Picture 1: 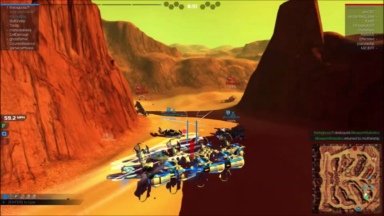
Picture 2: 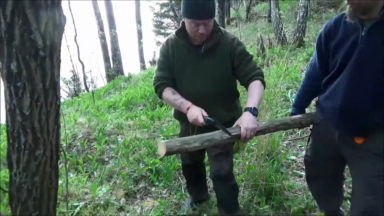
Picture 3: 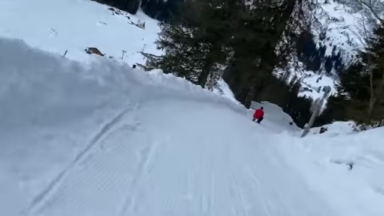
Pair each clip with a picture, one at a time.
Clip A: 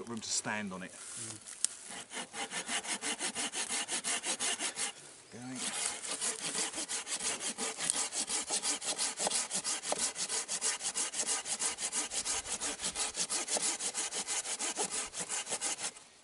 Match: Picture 2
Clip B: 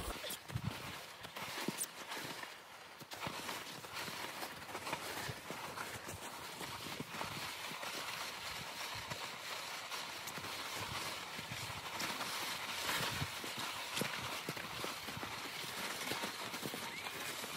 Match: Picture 3